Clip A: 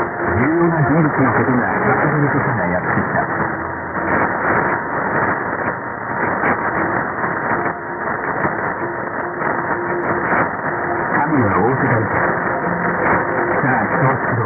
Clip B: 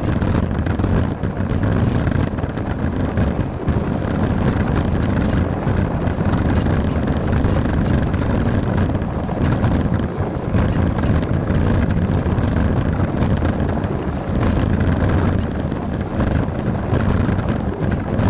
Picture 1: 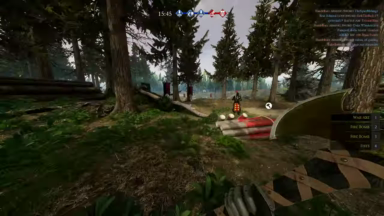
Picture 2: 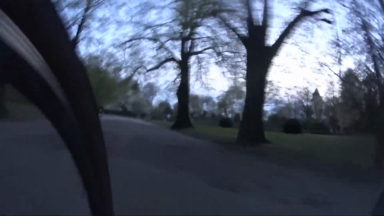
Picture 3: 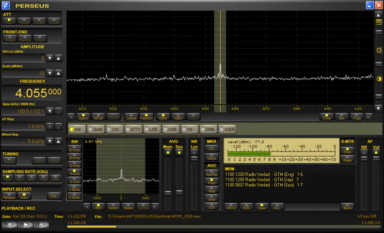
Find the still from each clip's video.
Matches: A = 3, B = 2